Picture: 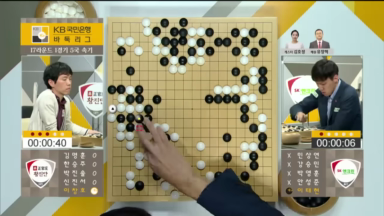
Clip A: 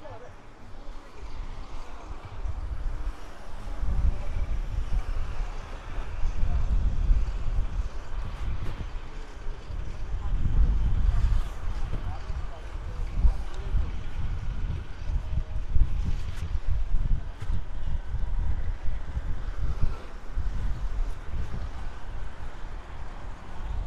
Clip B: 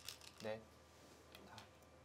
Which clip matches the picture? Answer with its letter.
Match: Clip B